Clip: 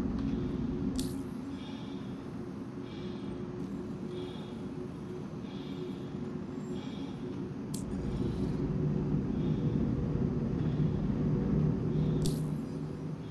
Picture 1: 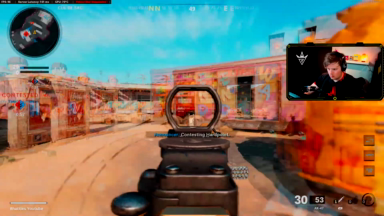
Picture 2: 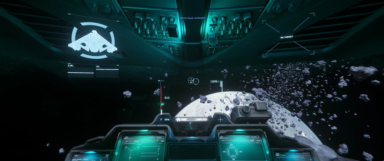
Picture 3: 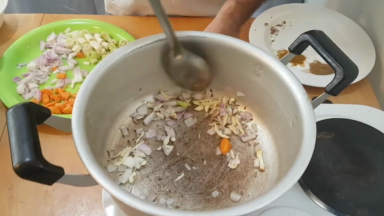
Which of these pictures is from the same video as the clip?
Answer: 2